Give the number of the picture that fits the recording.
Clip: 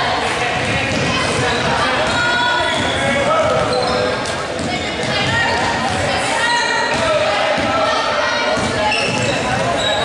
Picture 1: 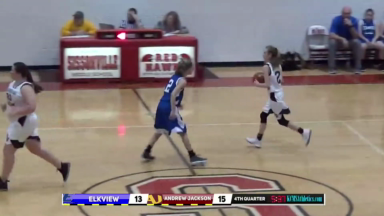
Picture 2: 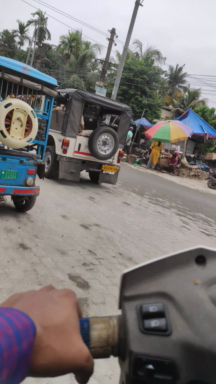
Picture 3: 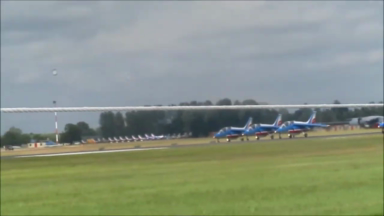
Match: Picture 1